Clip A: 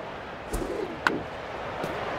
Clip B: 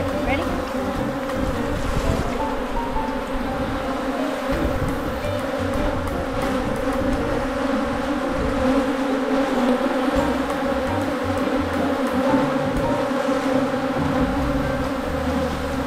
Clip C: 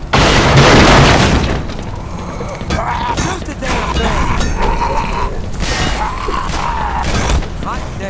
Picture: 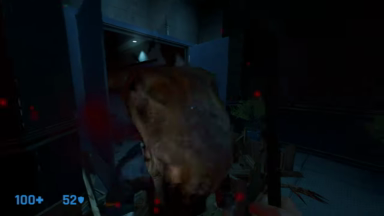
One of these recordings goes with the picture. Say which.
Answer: C